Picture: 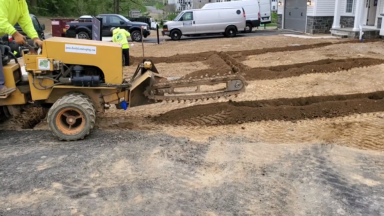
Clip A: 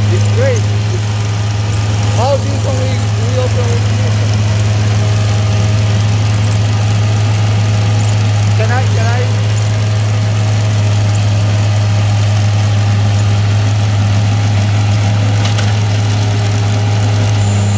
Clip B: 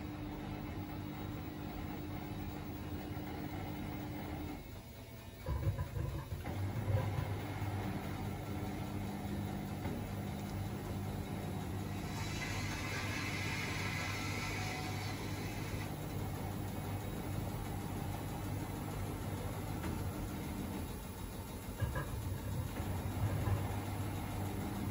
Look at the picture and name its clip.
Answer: A